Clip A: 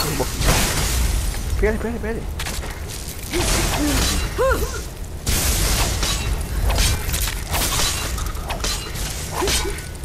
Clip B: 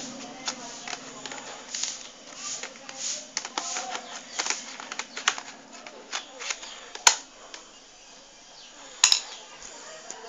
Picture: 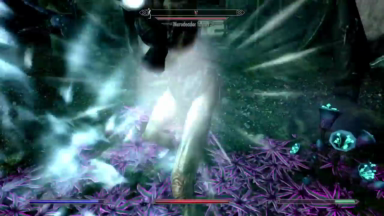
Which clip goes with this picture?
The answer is A